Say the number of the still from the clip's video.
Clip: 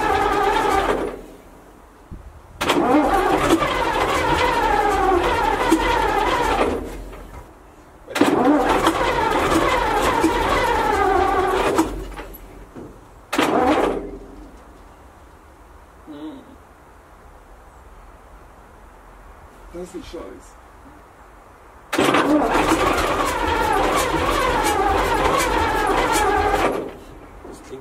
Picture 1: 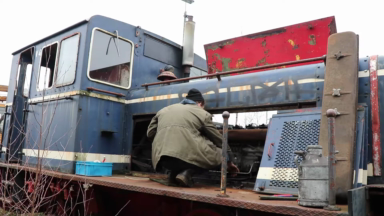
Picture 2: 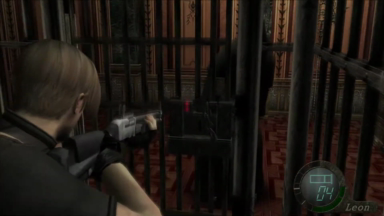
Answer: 1